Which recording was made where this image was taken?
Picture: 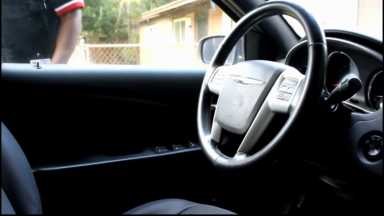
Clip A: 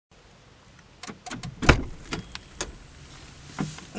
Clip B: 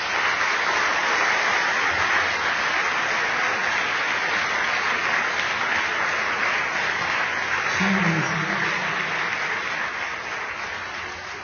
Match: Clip A